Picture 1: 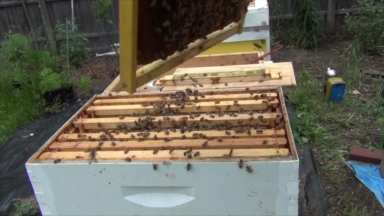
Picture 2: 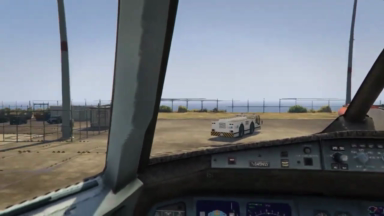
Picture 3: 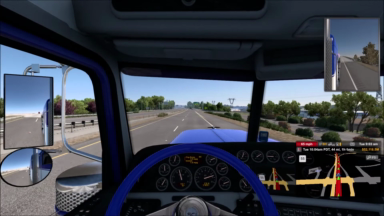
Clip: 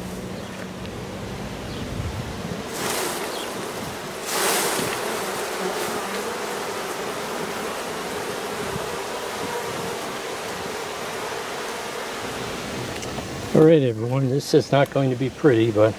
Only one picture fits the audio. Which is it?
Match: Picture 1